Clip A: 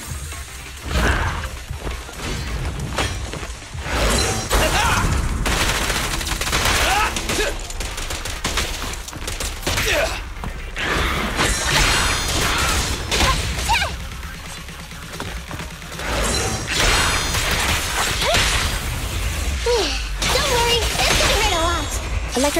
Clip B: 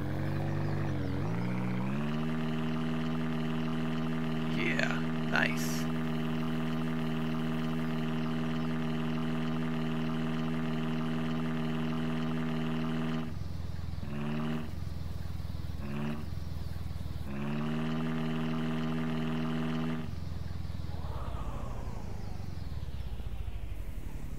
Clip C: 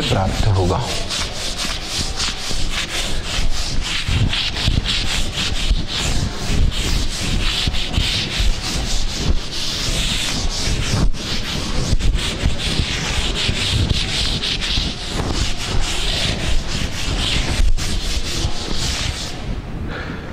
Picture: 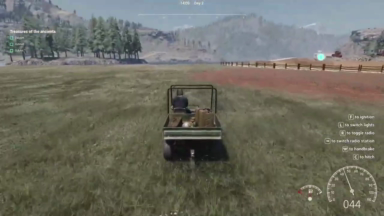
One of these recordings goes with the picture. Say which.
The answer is B